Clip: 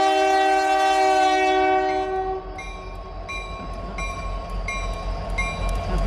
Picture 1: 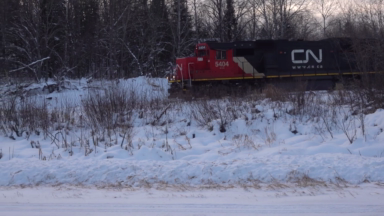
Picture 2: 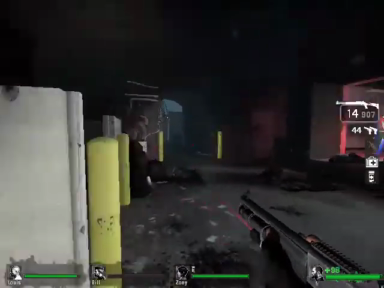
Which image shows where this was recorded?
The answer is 1